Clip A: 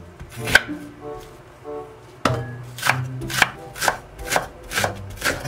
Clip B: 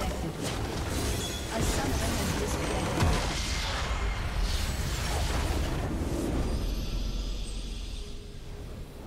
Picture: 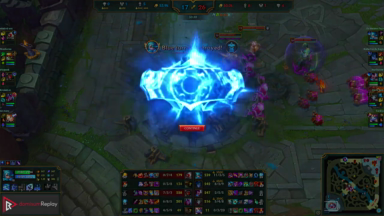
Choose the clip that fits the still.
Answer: B